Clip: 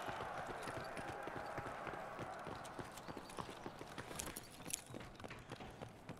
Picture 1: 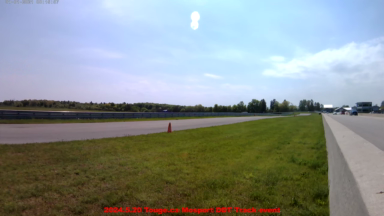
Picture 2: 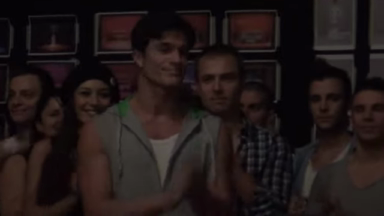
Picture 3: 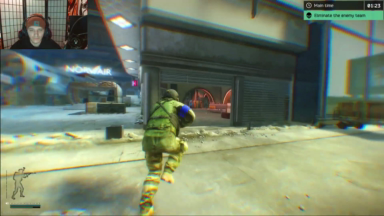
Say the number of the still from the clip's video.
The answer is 3